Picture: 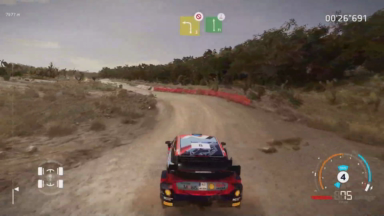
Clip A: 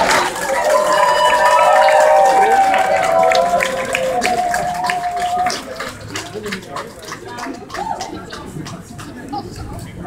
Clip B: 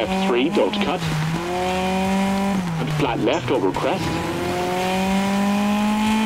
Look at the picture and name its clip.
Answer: B